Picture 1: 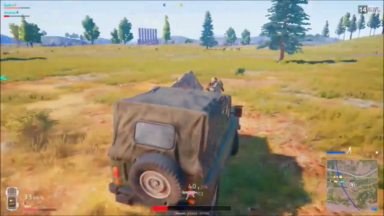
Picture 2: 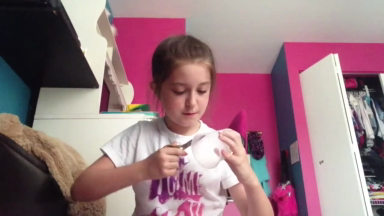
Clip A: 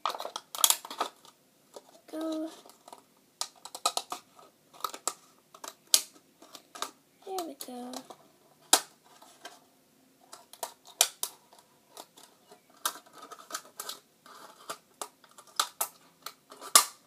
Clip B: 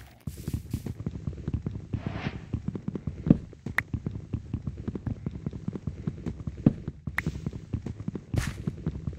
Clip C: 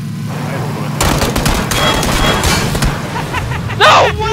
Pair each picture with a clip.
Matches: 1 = C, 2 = A